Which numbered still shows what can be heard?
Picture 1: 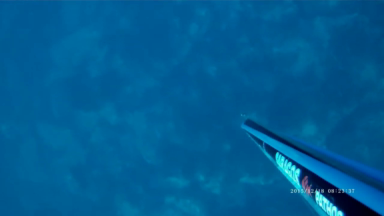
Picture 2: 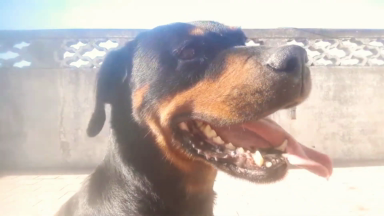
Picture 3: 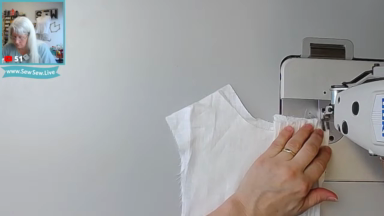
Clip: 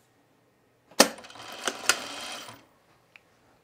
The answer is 3